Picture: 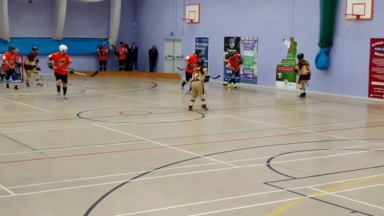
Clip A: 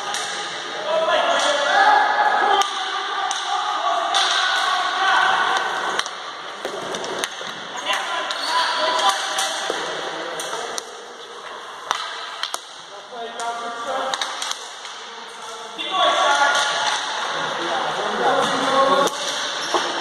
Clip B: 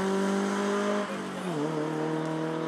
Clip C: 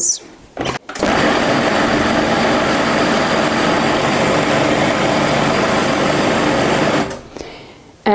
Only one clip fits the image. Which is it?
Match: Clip A